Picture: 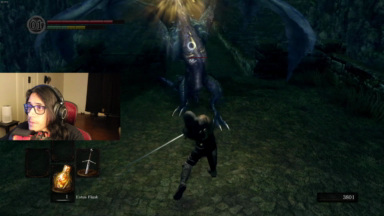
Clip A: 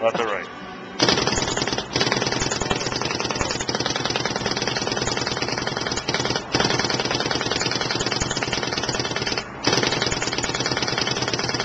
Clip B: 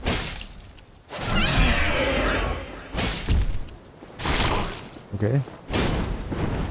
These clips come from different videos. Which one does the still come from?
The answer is B